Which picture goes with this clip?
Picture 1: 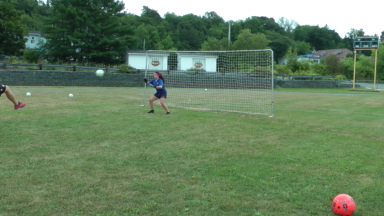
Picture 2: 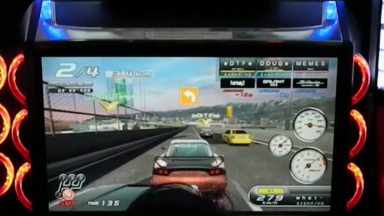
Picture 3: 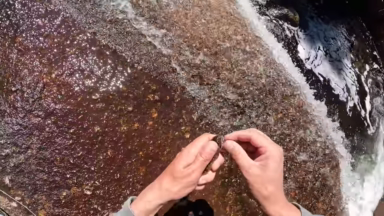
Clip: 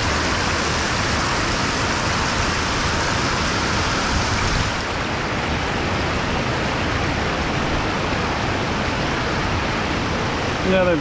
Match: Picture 3